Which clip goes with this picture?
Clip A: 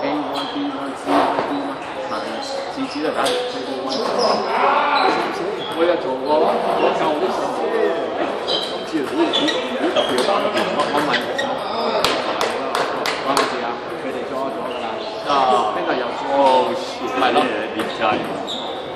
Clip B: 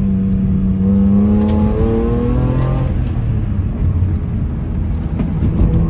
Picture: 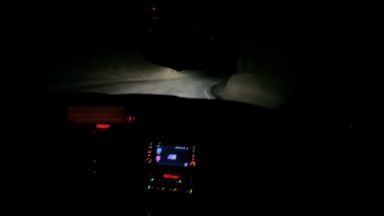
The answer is B